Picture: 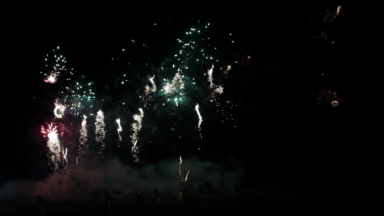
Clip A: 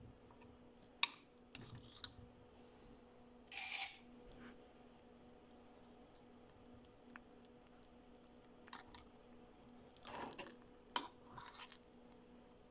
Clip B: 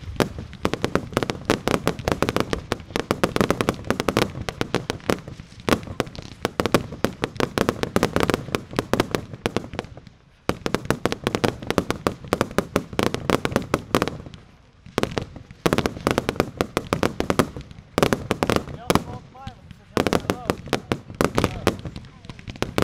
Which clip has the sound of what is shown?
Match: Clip B